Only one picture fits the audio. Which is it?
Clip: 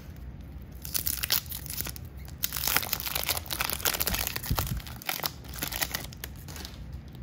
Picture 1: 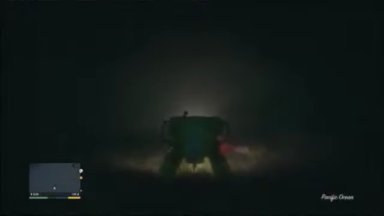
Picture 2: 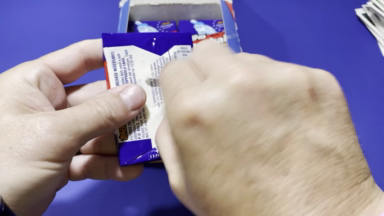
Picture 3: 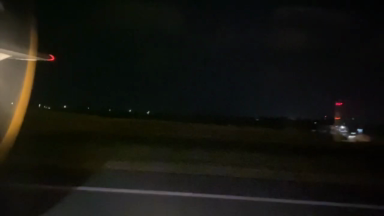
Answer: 2